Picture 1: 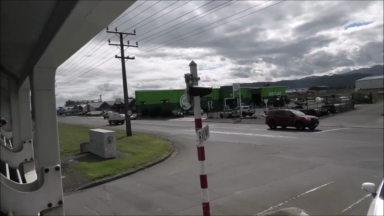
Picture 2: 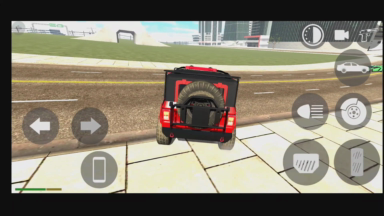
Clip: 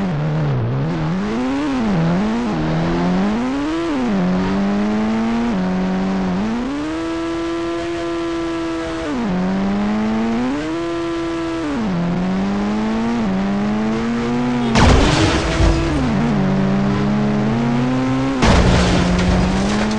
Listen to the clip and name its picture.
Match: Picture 2